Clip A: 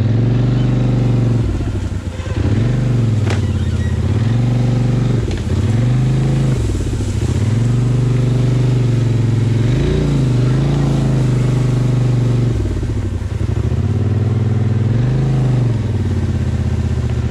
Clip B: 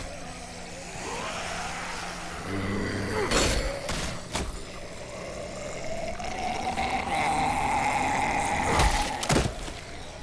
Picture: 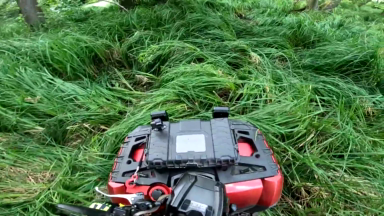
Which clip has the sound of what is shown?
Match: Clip A